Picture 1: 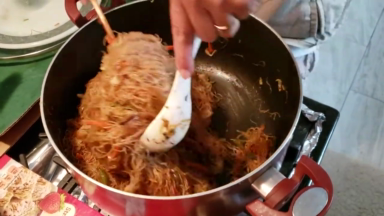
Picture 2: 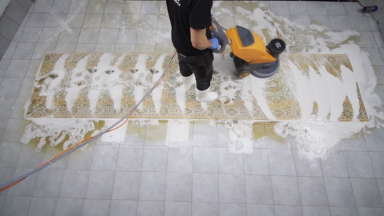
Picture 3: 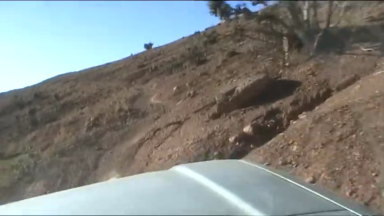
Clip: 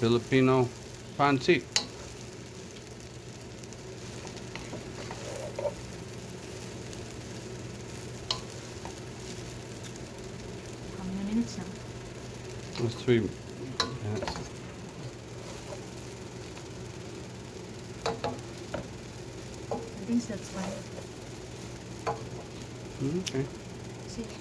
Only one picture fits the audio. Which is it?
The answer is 1